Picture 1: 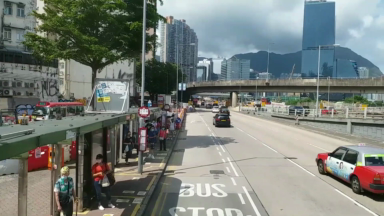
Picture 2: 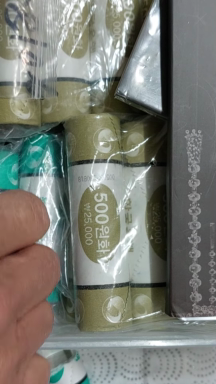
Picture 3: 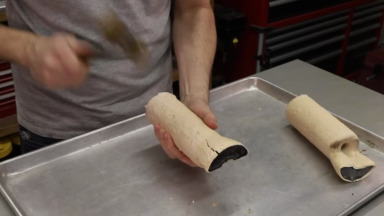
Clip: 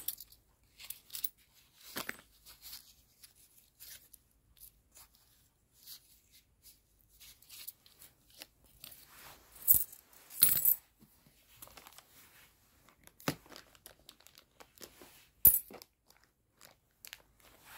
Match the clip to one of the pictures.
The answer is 2